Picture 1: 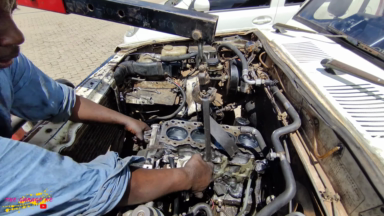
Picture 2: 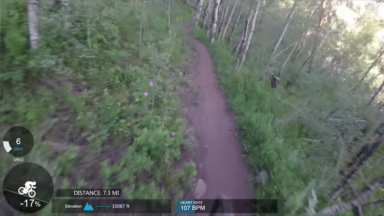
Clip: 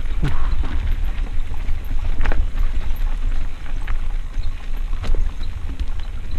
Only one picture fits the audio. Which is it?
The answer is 2